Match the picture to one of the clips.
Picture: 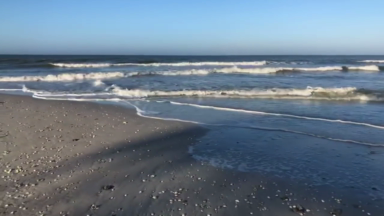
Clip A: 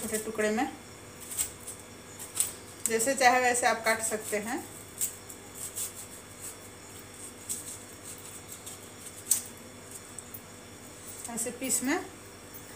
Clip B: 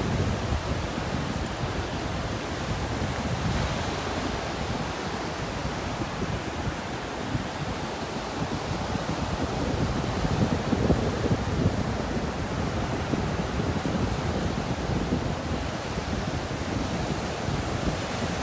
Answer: B